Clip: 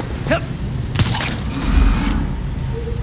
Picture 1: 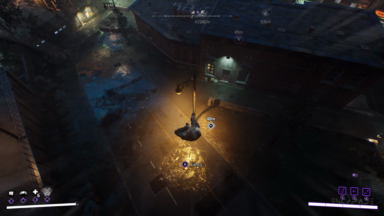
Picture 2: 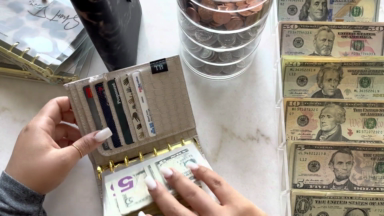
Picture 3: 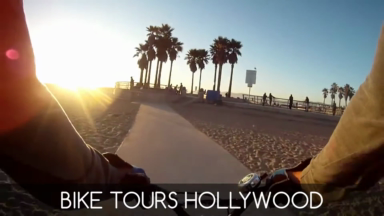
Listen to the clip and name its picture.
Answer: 1